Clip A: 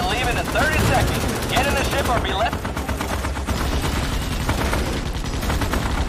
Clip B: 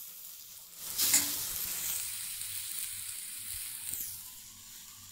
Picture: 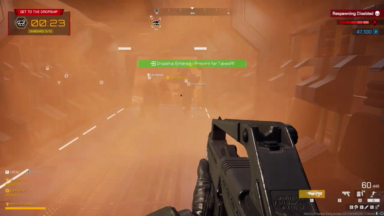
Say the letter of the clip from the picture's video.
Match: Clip A